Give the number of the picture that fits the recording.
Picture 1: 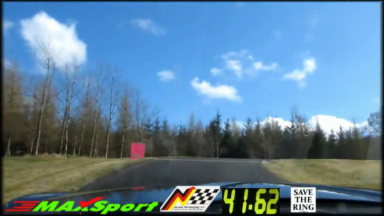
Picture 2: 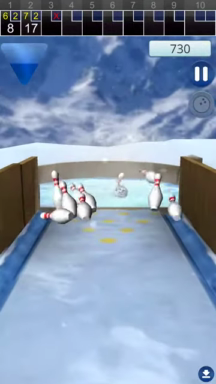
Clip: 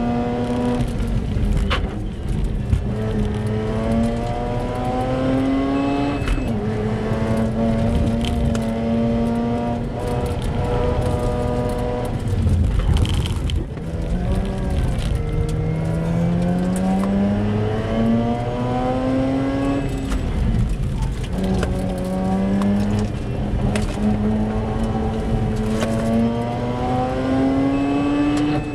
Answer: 1